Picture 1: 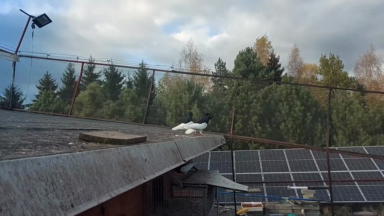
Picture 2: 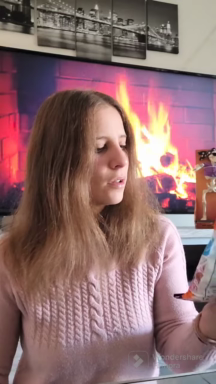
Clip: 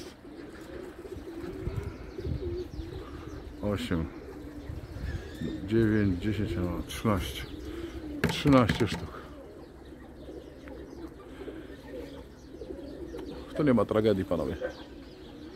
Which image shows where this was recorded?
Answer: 1